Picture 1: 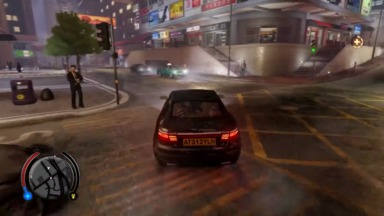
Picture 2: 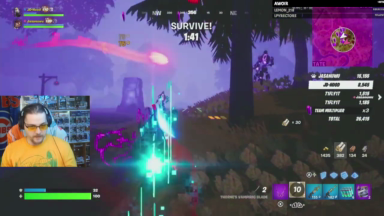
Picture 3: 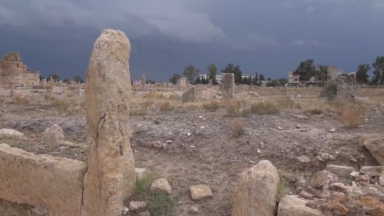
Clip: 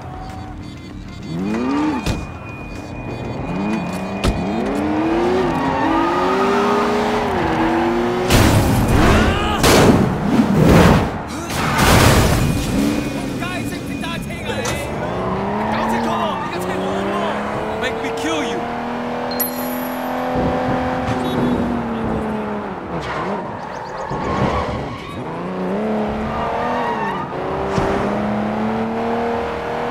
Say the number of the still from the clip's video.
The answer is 1